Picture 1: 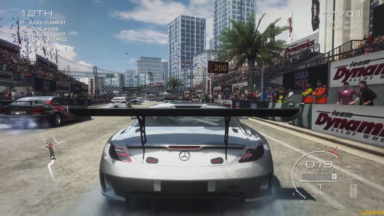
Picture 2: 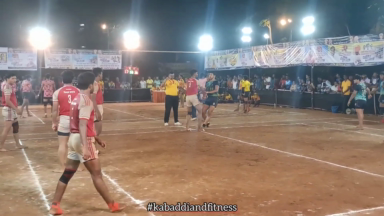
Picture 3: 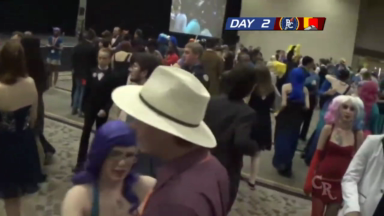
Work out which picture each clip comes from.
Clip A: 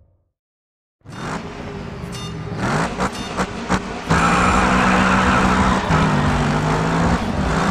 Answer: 1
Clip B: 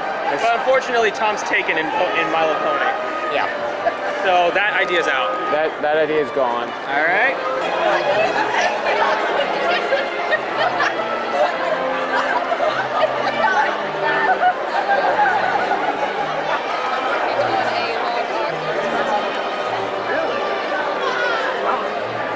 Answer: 3